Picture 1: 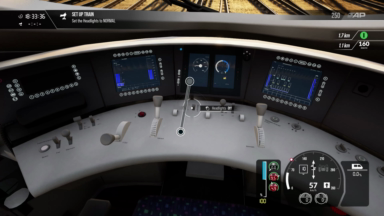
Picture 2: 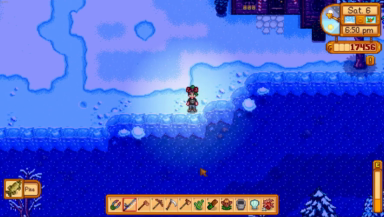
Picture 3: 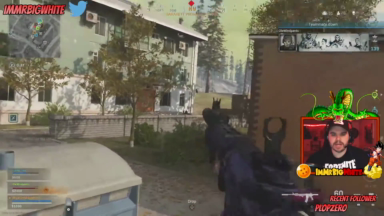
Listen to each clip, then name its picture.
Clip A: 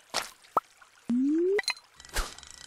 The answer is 2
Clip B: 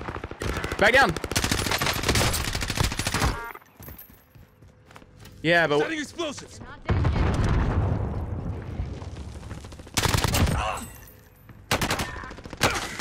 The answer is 3